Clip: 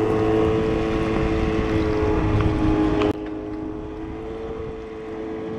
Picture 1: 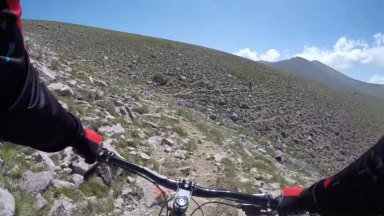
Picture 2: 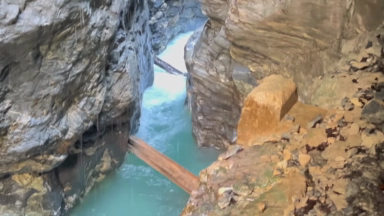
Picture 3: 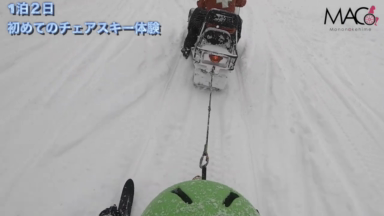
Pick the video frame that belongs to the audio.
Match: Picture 3